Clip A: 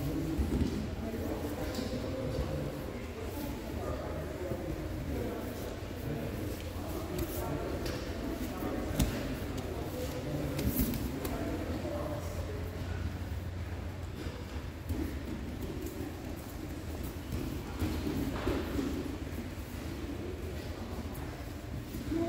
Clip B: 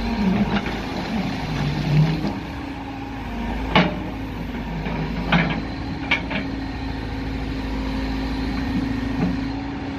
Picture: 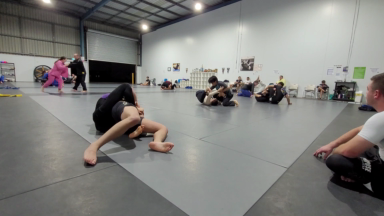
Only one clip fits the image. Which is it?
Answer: A